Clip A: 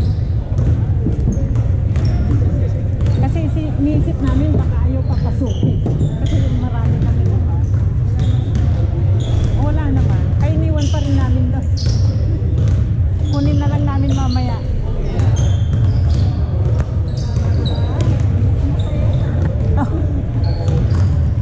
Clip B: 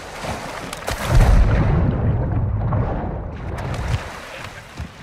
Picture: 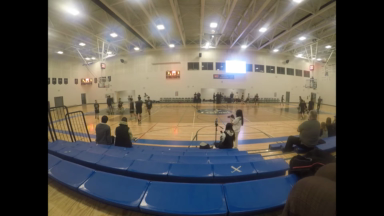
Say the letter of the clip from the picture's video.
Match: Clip A